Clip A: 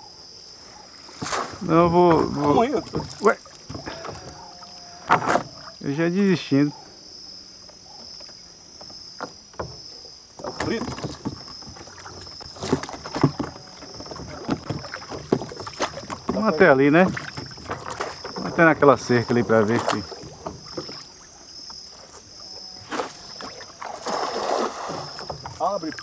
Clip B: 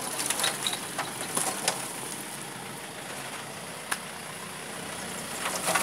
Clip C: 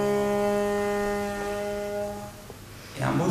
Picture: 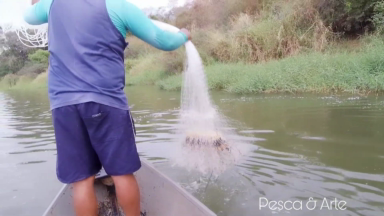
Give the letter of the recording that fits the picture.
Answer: A